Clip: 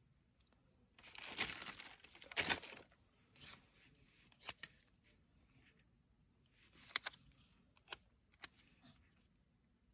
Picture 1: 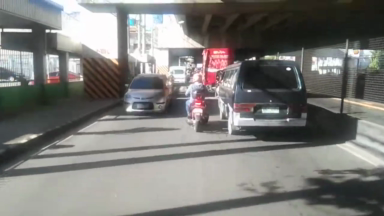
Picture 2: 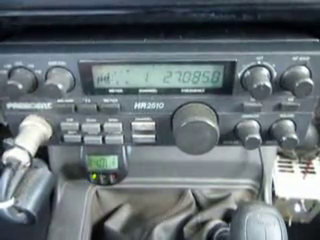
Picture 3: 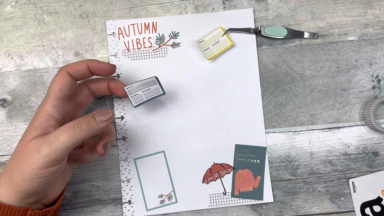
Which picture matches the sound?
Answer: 3